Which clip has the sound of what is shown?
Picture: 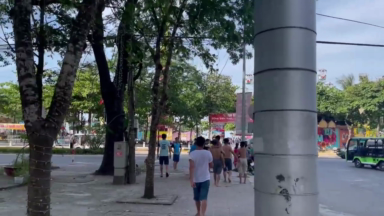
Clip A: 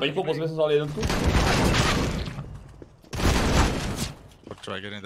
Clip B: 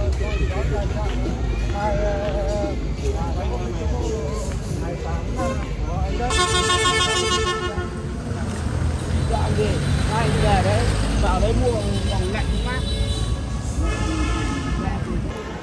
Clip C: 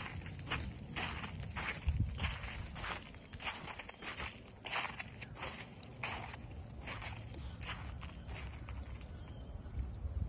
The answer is B